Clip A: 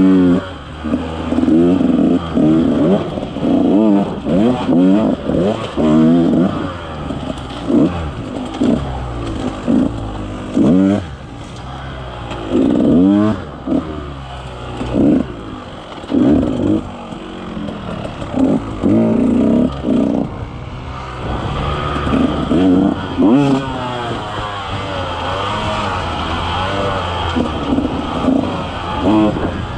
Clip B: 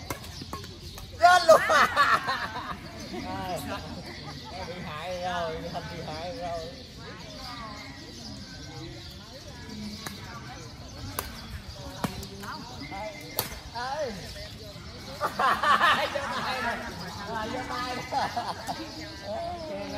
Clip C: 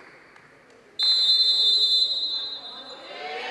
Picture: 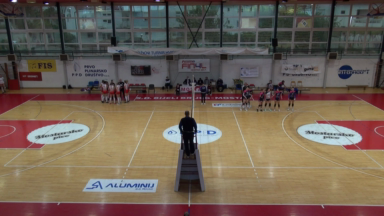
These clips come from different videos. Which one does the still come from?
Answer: C